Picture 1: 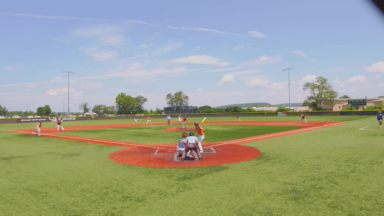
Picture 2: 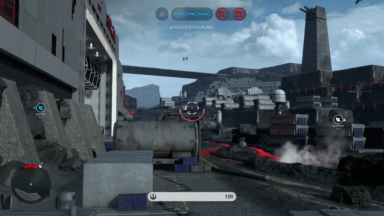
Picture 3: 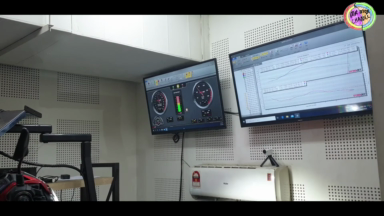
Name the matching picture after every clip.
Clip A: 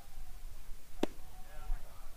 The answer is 1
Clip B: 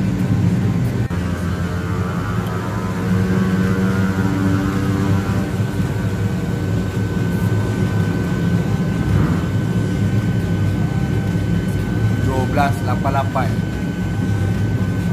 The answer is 3